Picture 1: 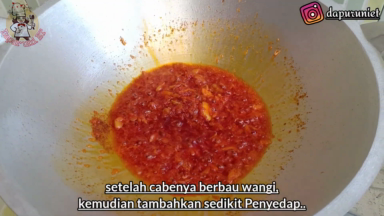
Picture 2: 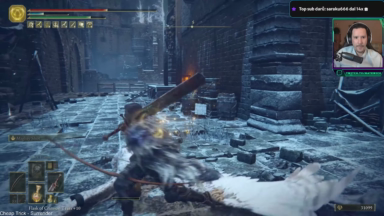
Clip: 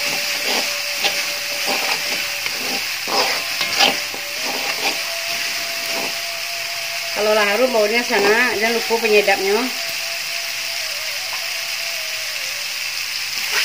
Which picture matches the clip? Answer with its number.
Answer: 1